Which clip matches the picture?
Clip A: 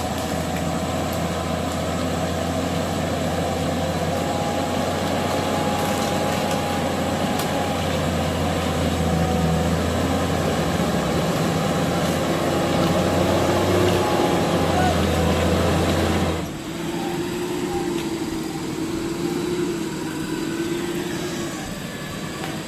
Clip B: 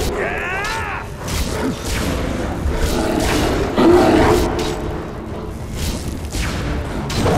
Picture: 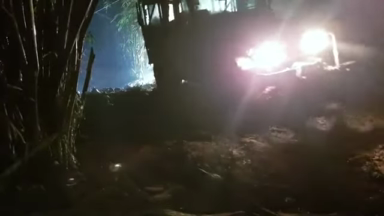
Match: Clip A